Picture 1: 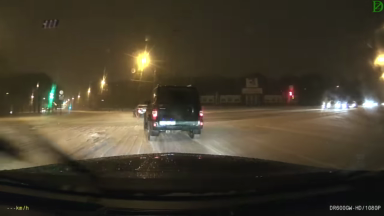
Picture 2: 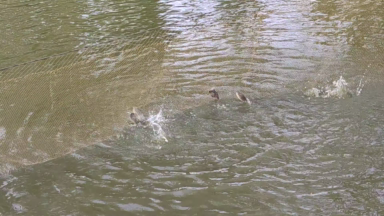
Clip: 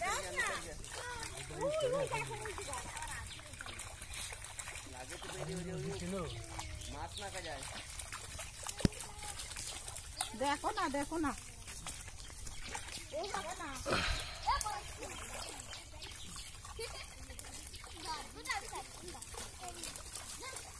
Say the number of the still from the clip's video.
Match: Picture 2